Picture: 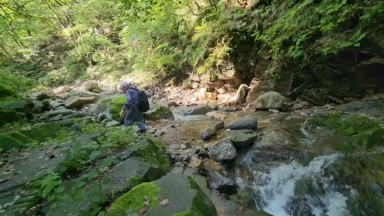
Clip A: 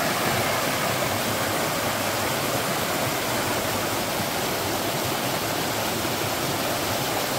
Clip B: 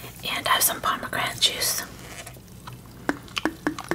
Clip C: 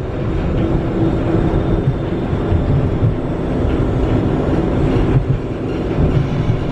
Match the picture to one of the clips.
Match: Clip A